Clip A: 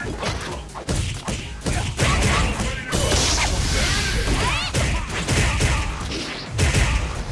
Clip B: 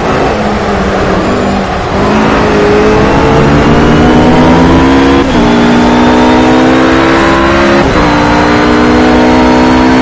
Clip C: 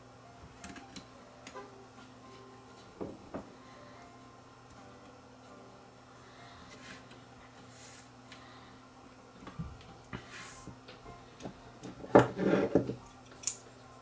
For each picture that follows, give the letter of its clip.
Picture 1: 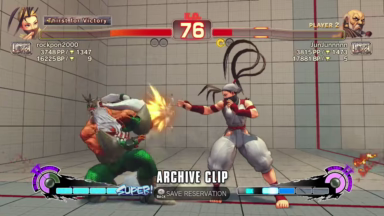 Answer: A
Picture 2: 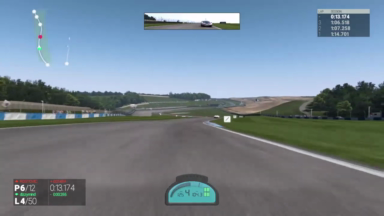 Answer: B